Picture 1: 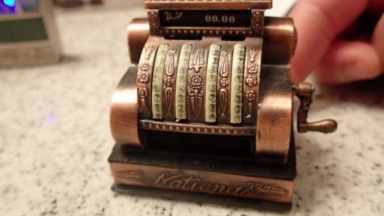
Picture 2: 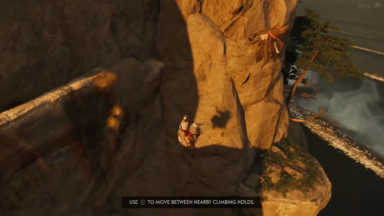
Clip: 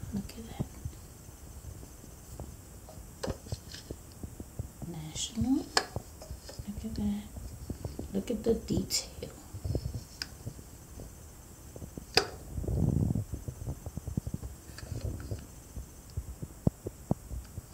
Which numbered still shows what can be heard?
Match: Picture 1